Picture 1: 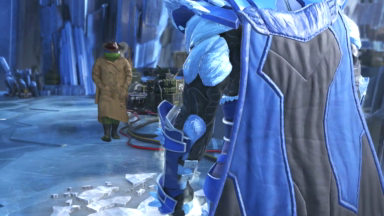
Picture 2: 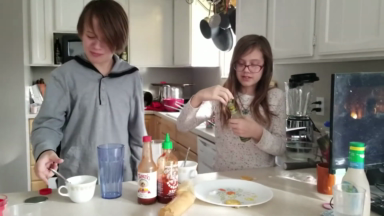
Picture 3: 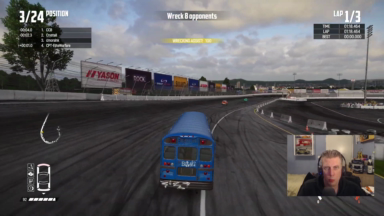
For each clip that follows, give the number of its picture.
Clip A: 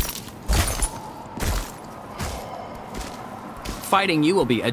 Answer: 1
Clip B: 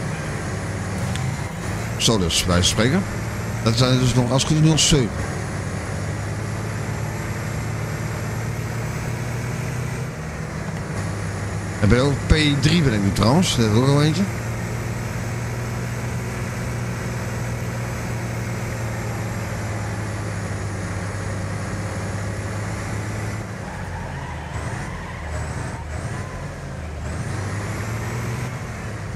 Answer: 3